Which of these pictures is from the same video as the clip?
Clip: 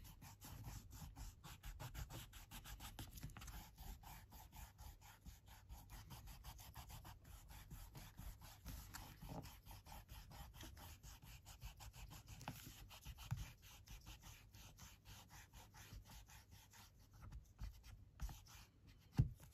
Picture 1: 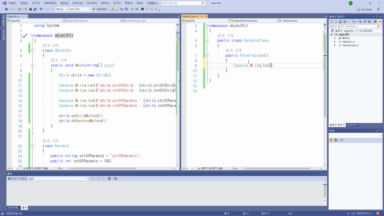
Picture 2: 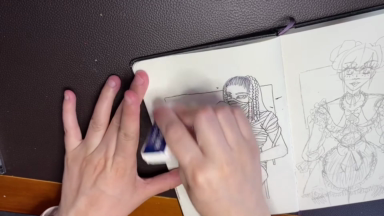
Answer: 2